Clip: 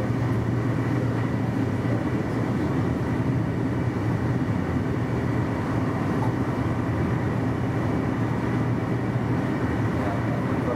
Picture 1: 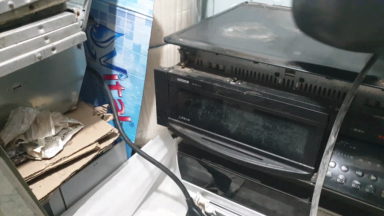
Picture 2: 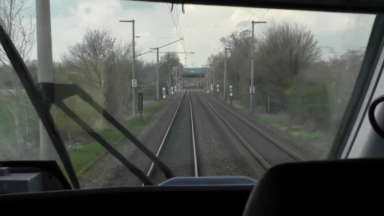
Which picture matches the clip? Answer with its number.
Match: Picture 2